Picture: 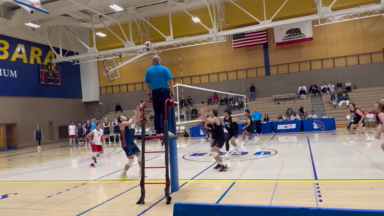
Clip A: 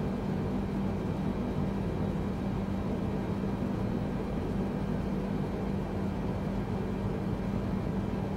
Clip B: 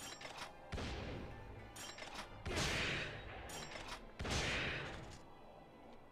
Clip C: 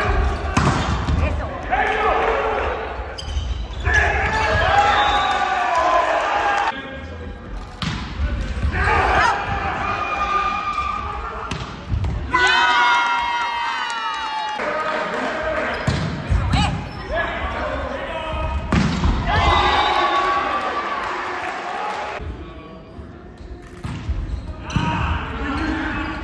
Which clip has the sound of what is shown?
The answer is C